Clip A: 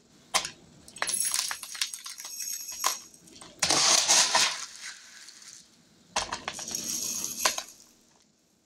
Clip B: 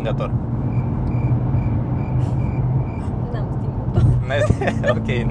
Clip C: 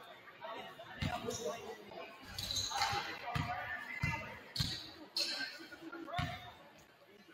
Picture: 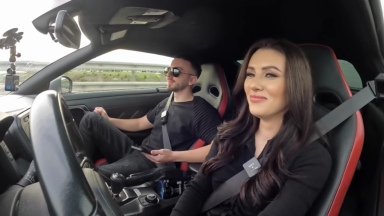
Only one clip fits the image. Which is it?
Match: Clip B